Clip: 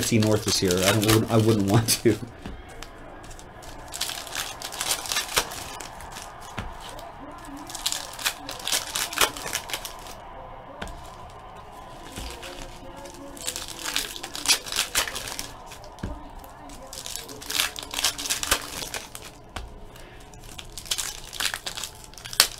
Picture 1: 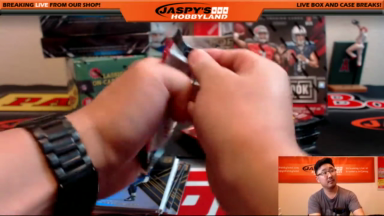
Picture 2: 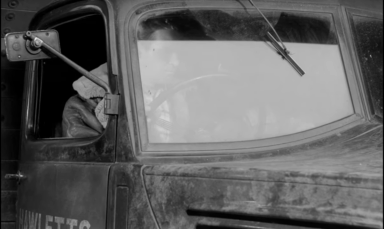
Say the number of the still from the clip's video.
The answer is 1